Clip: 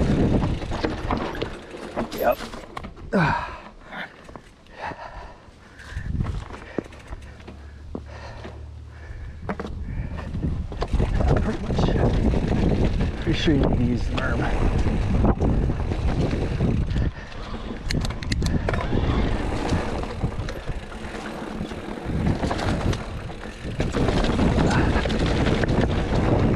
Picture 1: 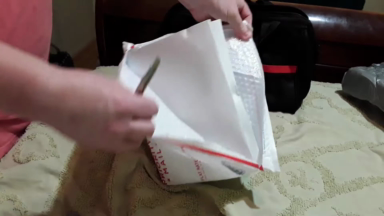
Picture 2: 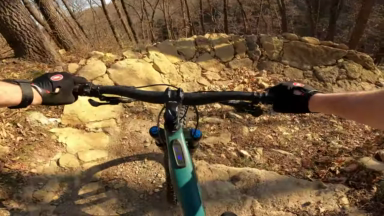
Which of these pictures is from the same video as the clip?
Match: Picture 2